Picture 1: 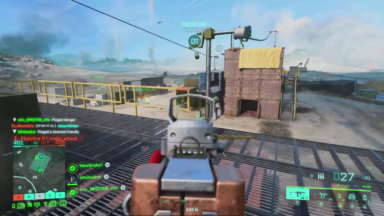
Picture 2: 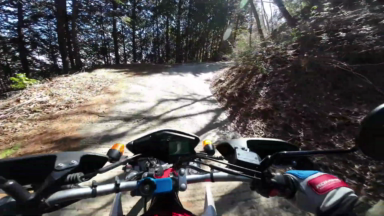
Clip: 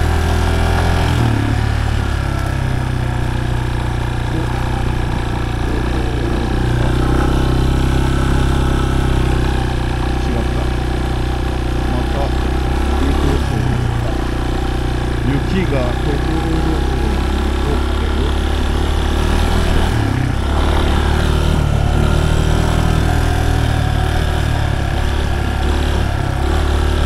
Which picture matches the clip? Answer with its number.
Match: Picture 2